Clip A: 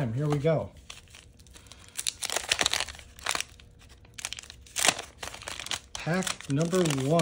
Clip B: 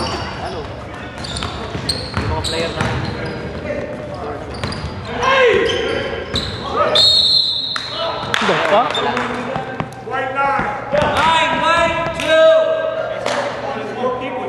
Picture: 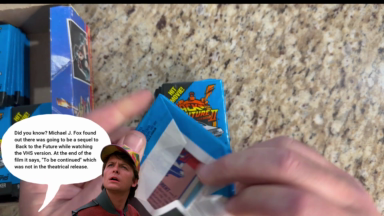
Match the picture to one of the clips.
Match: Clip A